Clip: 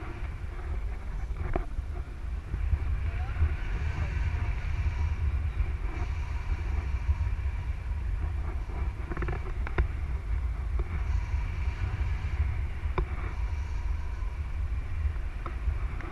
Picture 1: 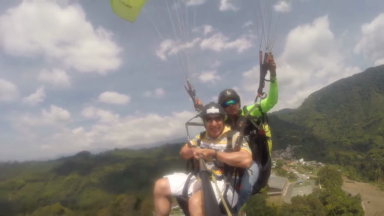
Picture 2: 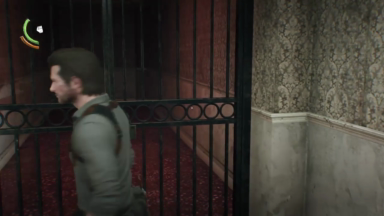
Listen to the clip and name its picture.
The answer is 1